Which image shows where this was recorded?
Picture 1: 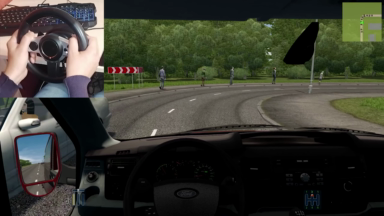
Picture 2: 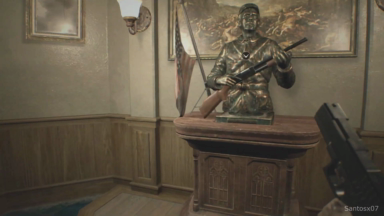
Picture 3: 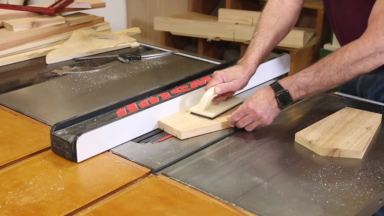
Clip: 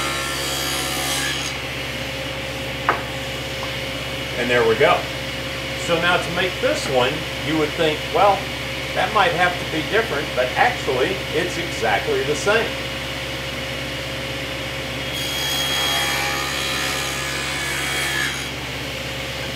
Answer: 3